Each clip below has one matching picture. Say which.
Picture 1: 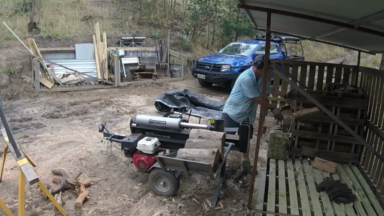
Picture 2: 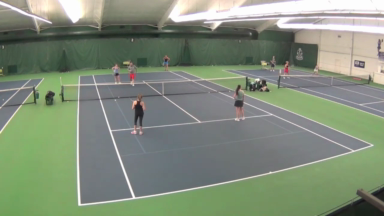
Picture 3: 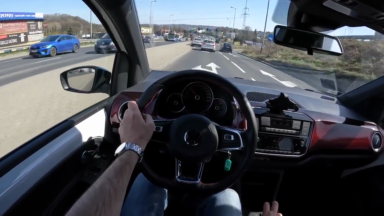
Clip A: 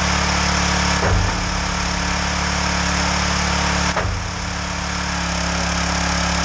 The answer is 1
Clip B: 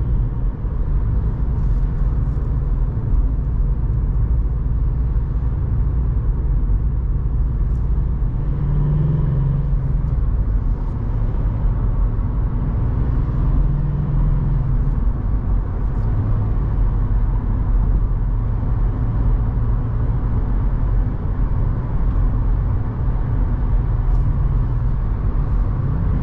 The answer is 3